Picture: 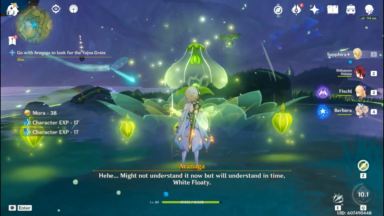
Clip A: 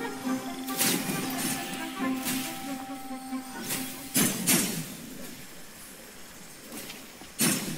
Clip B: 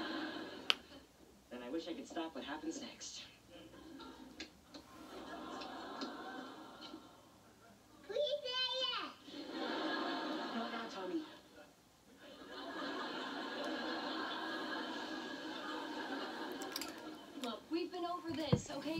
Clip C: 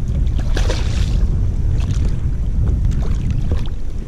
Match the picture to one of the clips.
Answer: A